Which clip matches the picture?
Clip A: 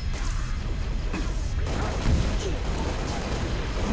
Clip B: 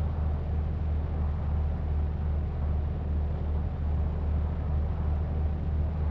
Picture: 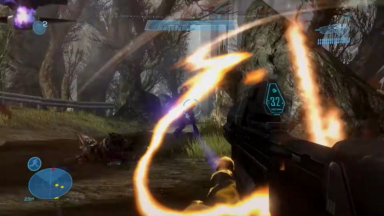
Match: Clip A